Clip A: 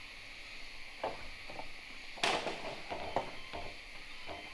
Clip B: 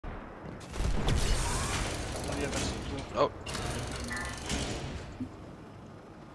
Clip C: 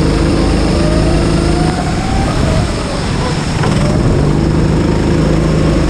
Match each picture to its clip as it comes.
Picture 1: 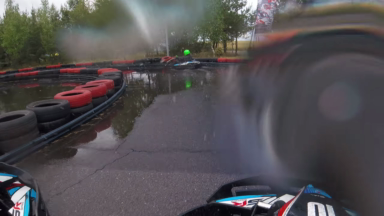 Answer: C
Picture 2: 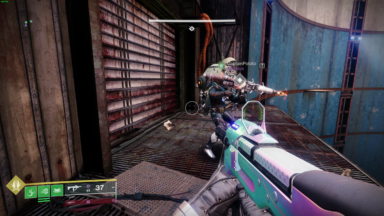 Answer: B